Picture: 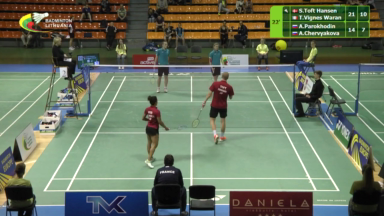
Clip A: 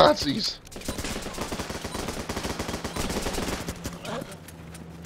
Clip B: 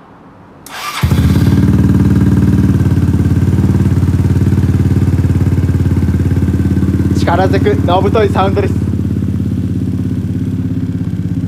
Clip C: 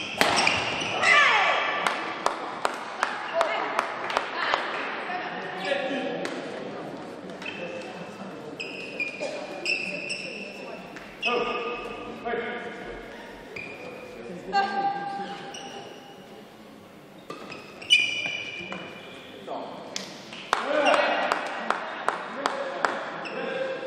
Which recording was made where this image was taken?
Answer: C